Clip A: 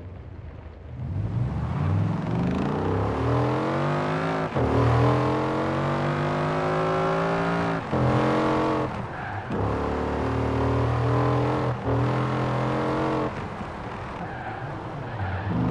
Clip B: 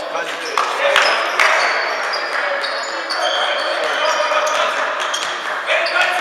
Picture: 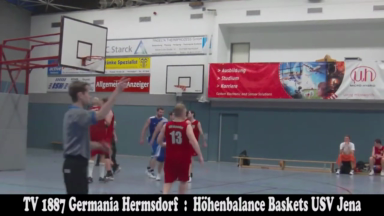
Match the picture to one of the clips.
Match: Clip B